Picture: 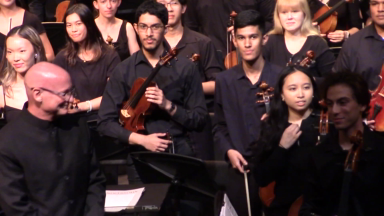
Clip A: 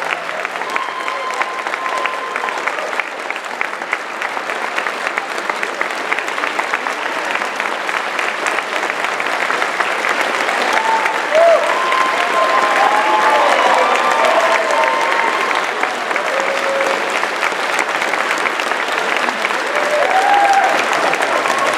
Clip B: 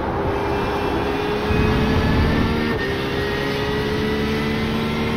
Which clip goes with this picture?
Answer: A